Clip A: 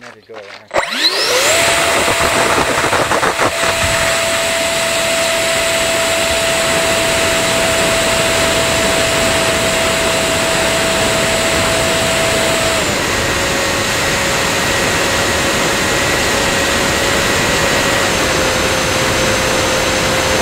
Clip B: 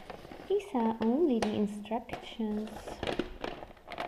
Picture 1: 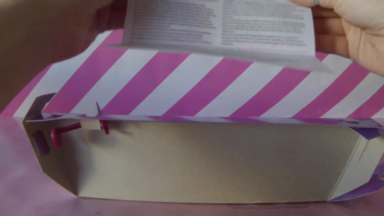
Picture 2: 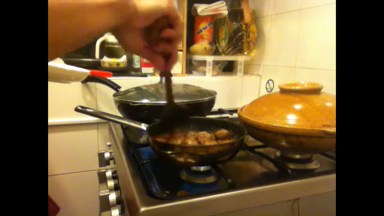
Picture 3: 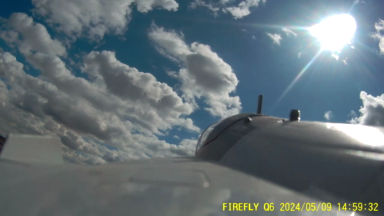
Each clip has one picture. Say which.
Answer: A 3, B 1